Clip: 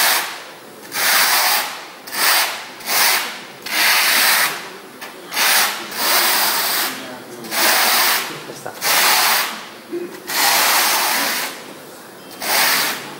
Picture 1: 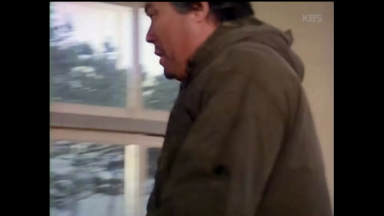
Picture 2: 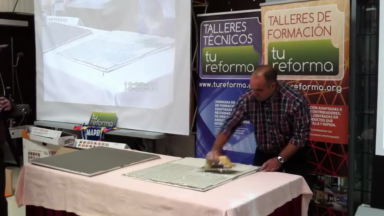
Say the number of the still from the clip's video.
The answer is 2